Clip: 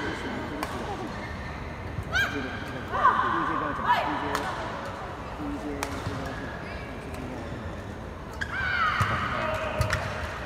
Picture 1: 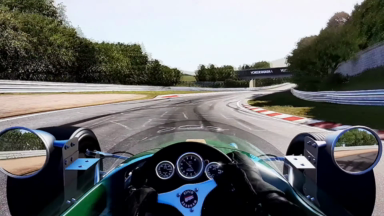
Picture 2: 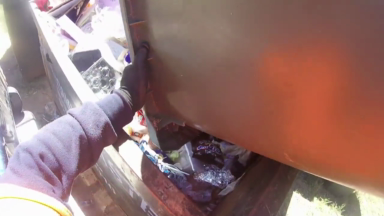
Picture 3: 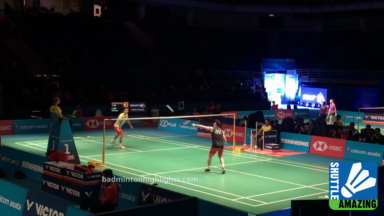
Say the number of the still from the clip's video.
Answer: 3